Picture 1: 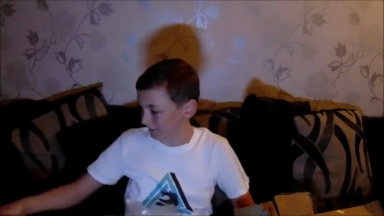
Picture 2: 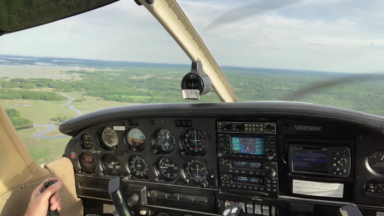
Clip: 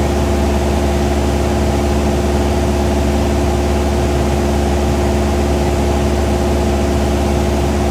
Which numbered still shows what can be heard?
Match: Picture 2